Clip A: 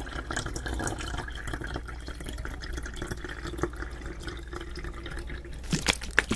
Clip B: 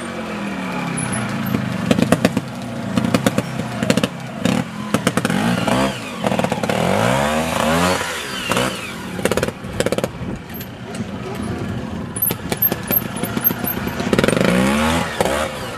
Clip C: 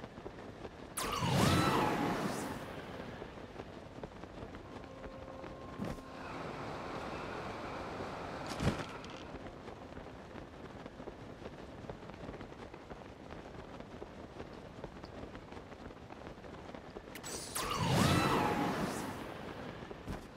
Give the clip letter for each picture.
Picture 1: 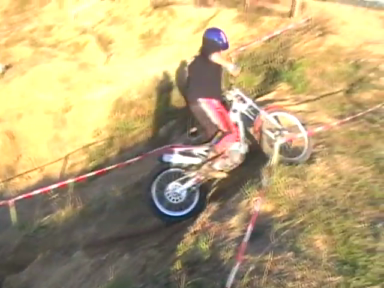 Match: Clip B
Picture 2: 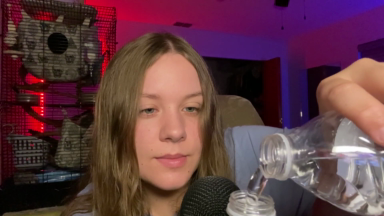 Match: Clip A